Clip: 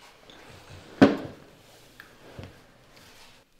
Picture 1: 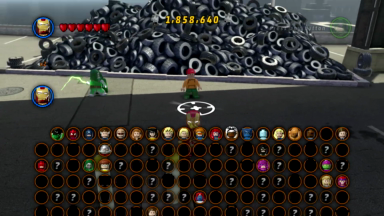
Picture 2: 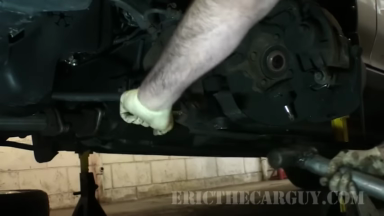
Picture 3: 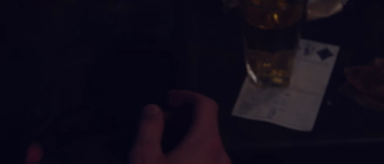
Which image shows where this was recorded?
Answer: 3